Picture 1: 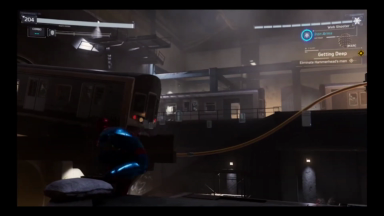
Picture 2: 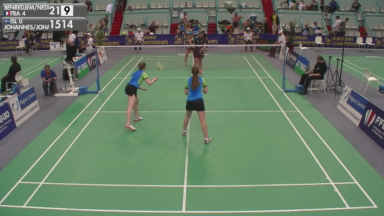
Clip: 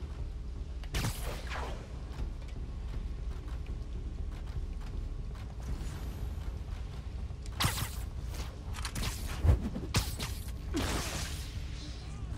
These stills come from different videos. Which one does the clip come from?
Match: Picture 1